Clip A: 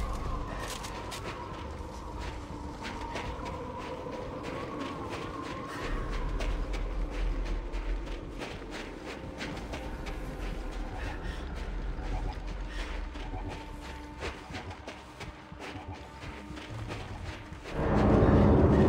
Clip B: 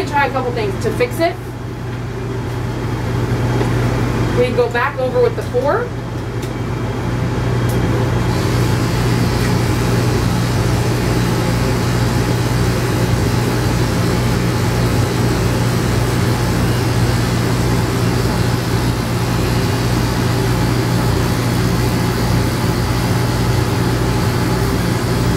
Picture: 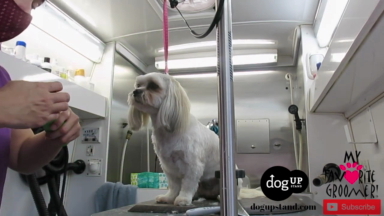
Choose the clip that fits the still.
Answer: B